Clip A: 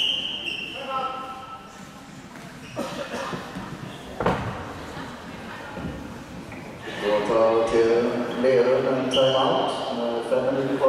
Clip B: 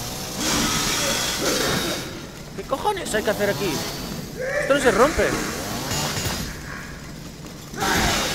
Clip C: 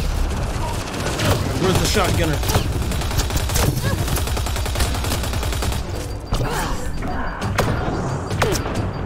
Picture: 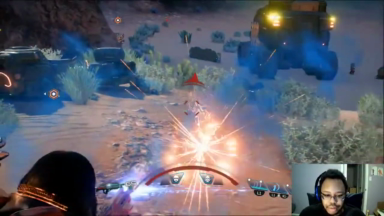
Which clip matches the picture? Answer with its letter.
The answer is C